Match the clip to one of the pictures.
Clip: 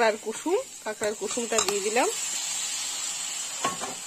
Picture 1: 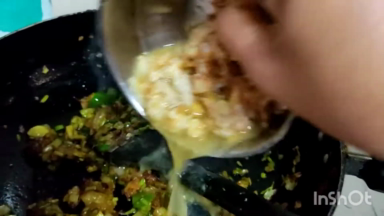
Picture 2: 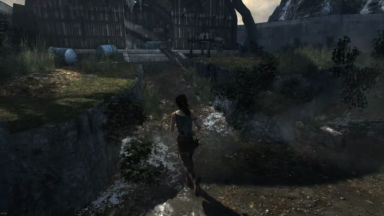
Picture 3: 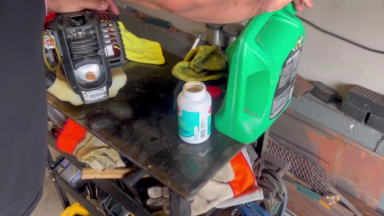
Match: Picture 1